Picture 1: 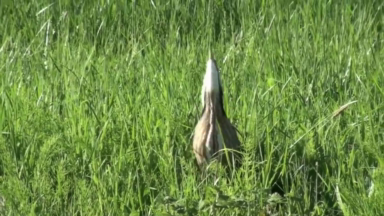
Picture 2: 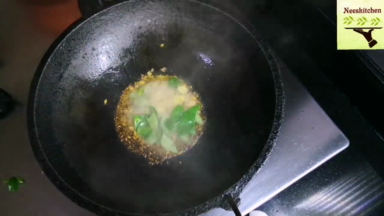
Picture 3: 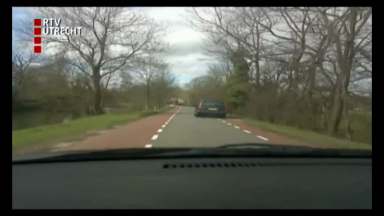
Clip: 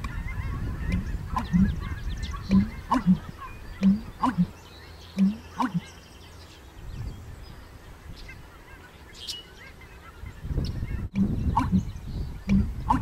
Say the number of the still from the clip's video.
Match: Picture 1